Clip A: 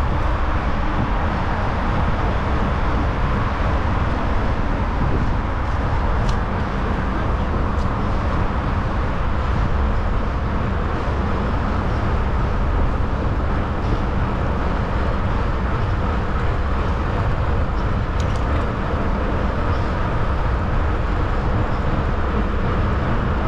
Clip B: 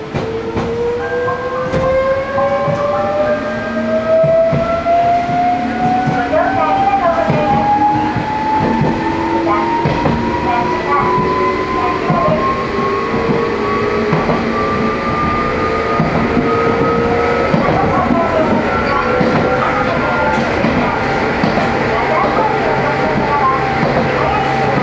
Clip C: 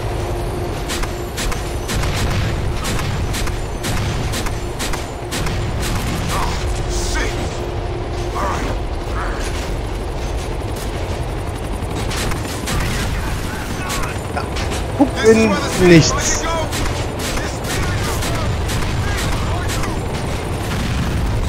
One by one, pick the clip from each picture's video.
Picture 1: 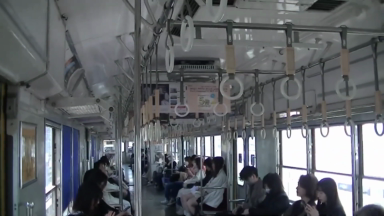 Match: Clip B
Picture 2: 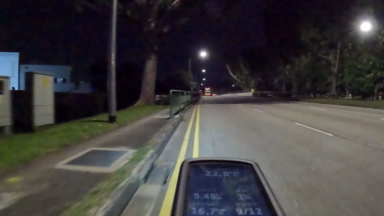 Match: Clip A